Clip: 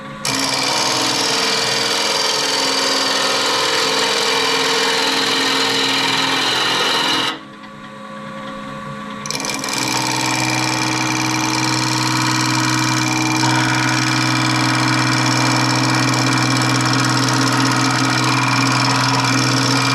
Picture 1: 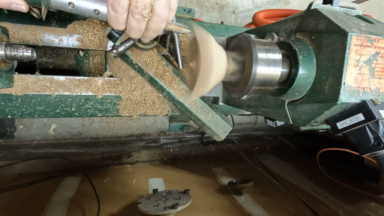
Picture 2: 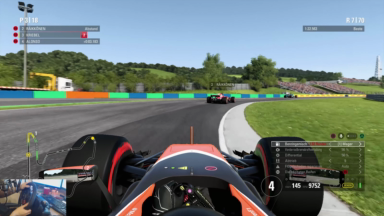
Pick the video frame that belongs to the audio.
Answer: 1